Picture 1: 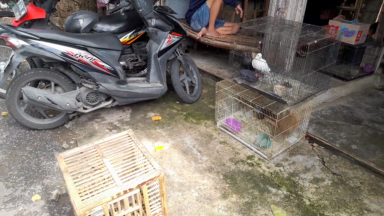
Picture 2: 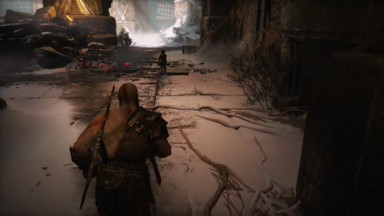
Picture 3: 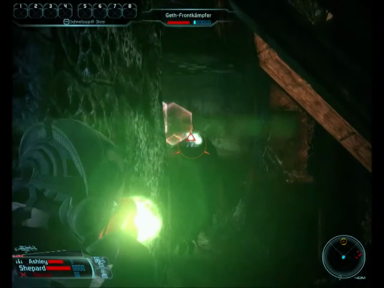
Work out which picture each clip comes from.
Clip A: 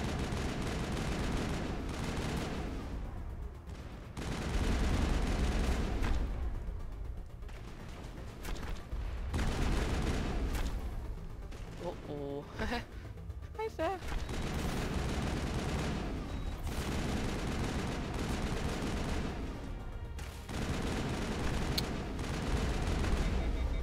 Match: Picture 3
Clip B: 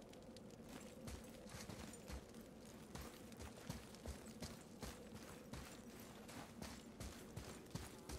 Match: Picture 2